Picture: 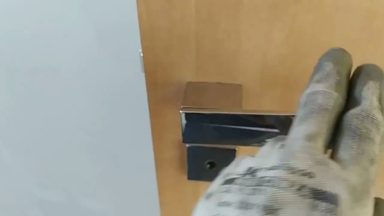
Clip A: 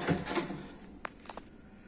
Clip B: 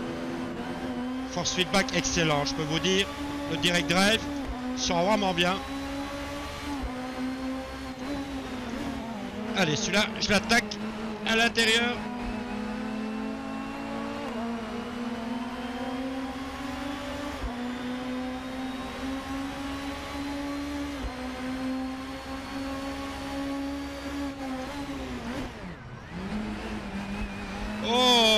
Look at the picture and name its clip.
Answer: A